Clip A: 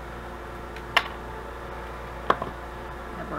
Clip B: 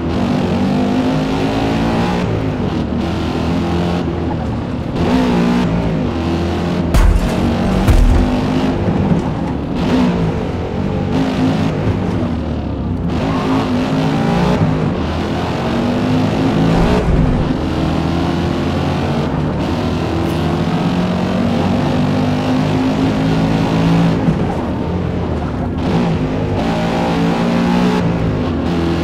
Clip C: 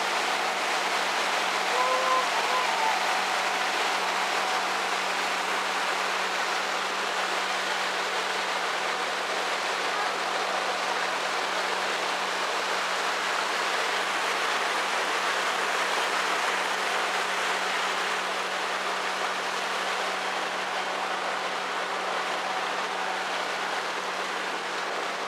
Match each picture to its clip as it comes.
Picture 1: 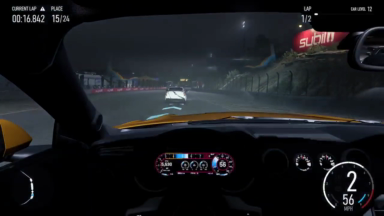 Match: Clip B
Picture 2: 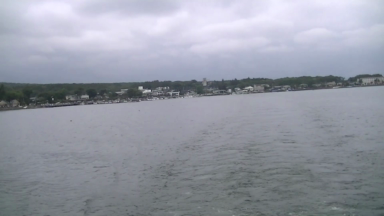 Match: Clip C